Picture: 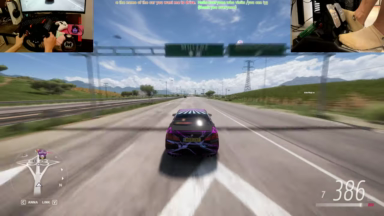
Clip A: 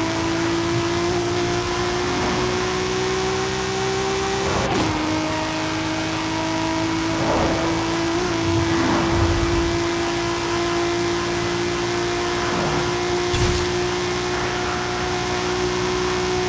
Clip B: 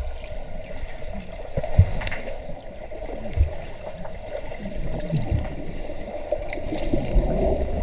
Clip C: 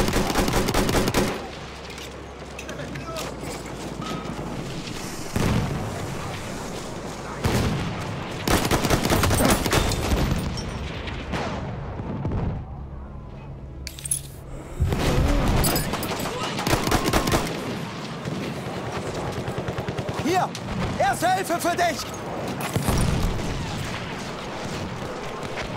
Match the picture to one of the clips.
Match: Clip A